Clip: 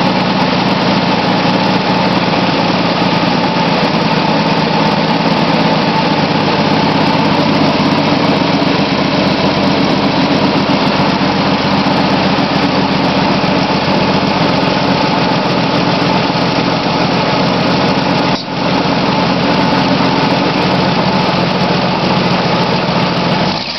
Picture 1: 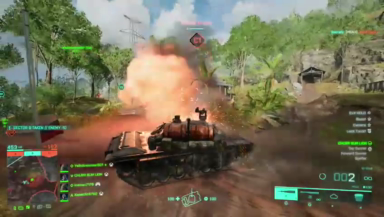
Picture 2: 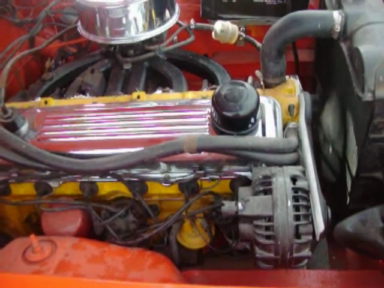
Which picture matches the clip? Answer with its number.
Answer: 2